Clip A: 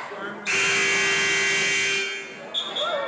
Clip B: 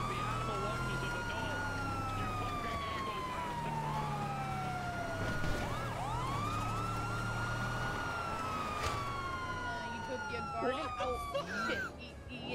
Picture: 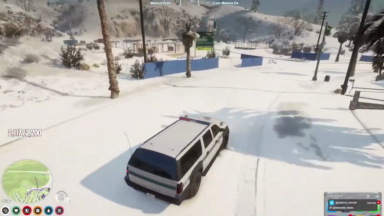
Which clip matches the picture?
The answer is B